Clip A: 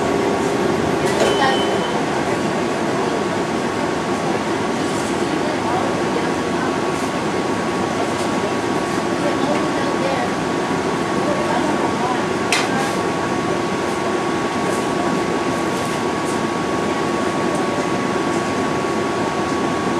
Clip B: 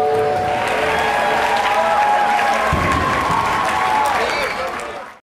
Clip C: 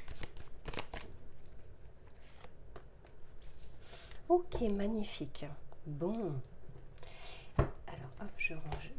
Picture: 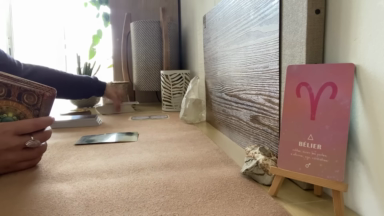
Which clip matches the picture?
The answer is C